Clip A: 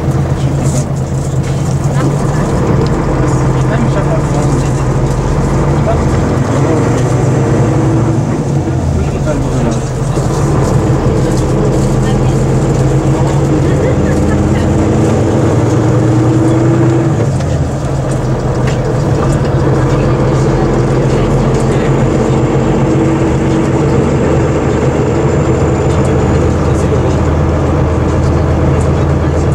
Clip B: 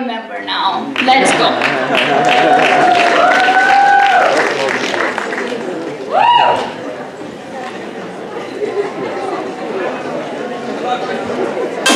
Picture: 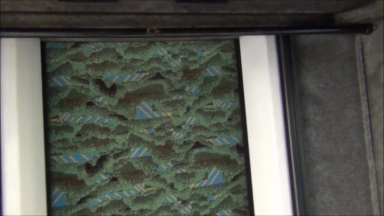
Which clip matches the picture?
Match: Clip A